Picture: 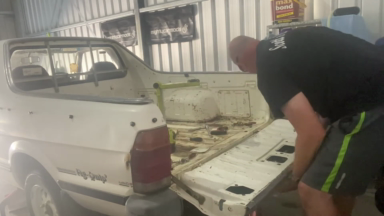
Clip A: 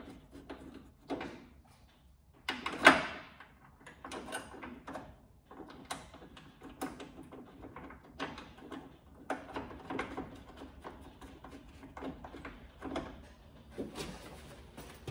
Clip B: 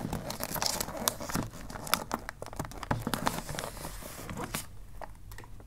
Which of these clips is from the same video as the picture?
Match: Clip A